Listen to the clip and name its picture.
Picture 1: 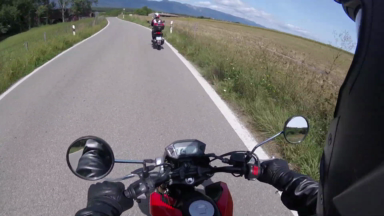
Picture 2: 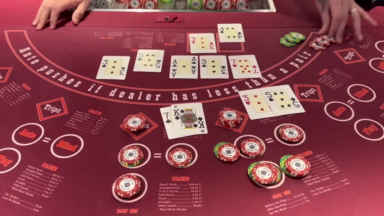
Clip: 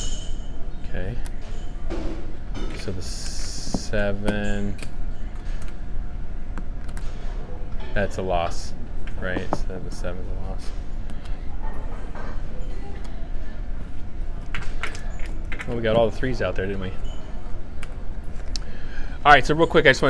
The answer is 2